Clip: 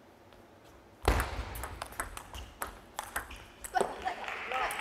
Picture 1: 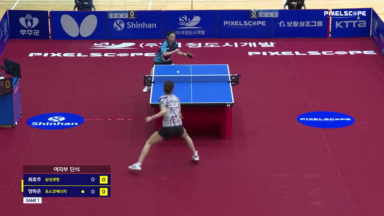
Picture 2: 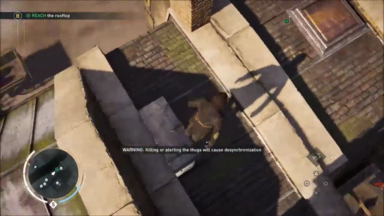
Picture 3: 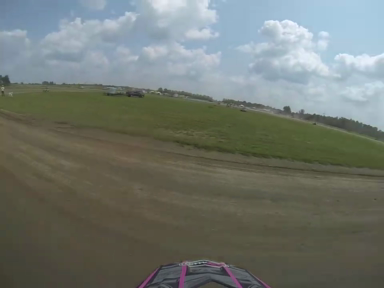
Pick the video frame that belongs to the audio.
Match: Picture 1